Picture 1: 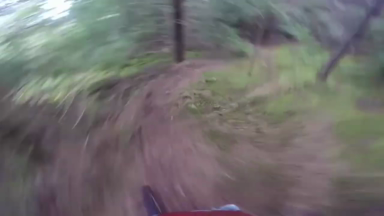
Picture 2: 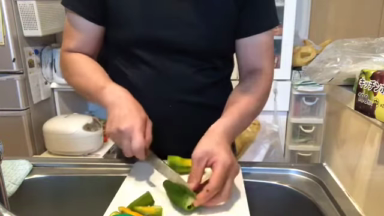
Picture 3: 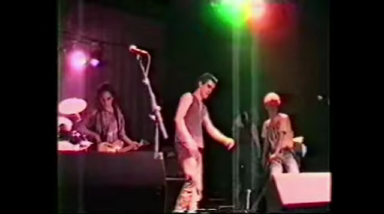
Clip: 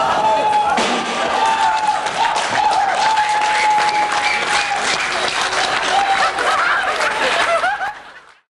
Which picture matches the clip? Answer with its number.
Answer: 3